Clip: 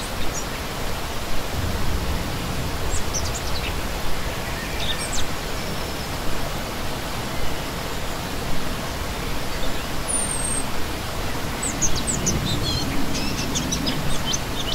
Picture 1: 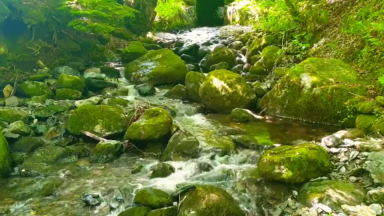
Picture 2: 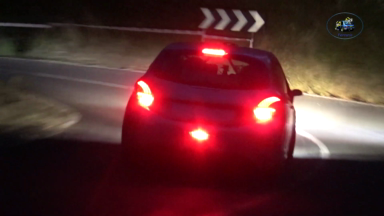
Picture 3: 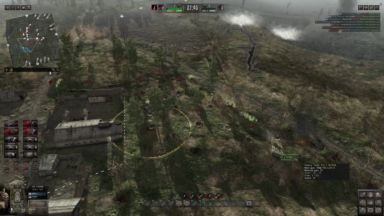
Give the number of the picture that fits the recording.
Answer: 1